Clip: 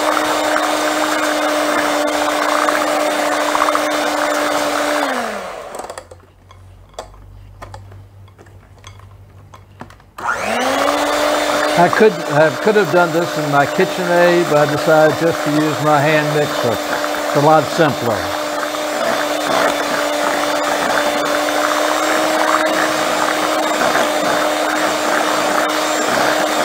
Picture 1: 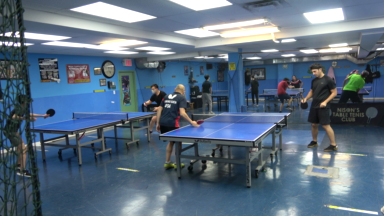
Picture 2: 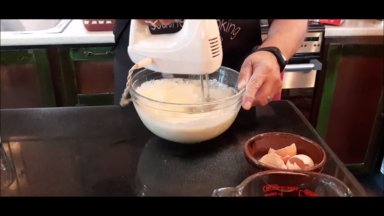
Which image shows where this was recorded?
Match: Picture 2